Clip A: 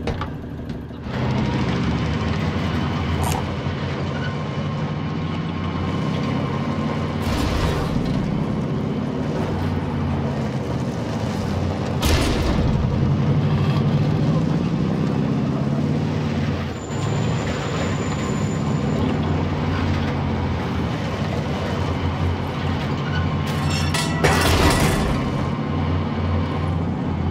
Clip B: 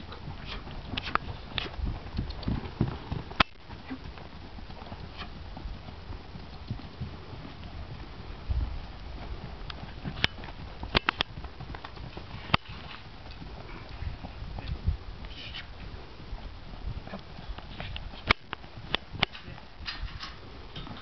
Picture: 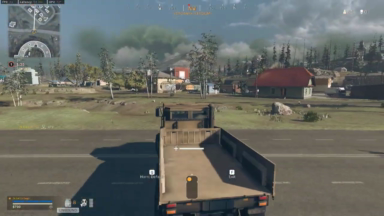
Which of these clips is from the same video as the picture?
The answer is A